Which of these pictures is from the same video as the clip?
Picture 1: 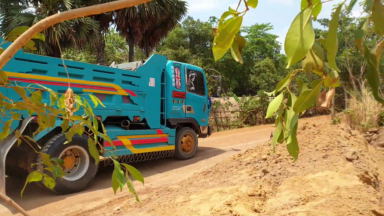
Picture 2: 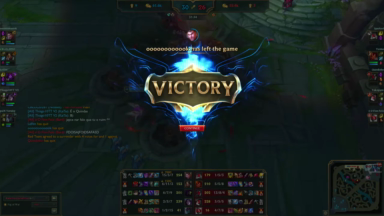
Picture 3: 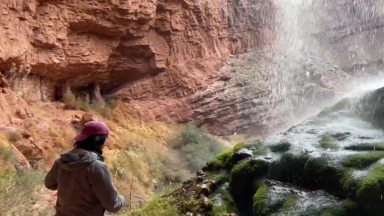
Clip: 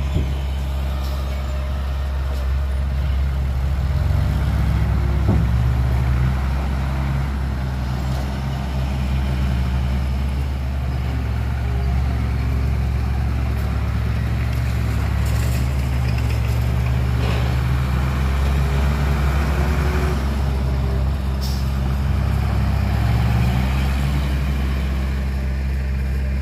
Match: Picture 1